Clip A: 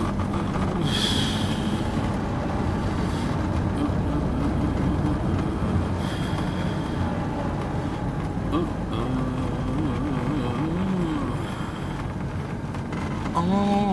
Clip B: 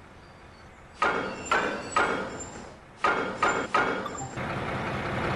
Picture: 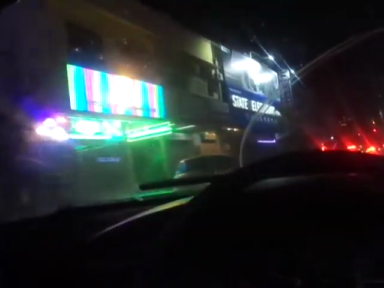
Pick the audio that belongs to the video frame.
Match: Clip A